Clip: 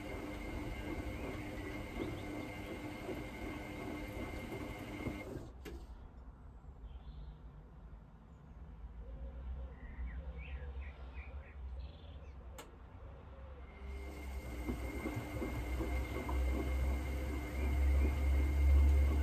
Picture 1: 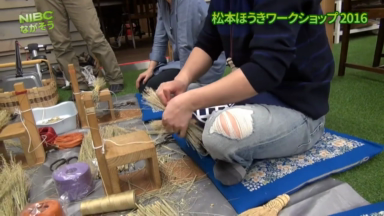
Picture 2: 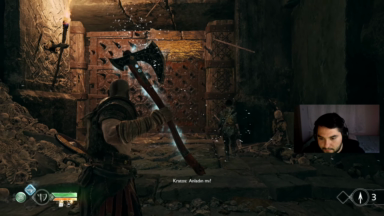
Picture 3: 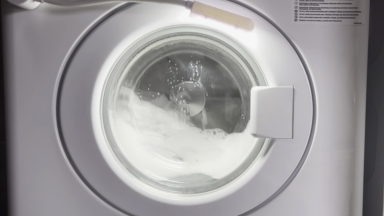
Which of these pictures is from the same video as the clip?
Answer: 3